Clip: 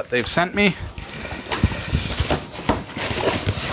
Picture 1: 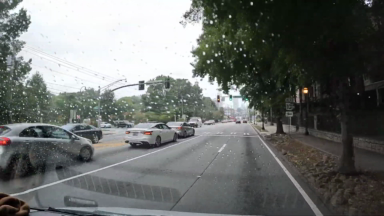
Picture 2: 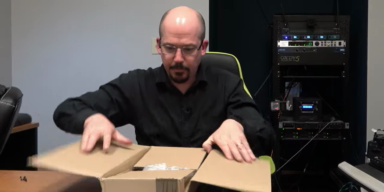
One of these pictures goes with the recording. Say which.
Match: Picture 2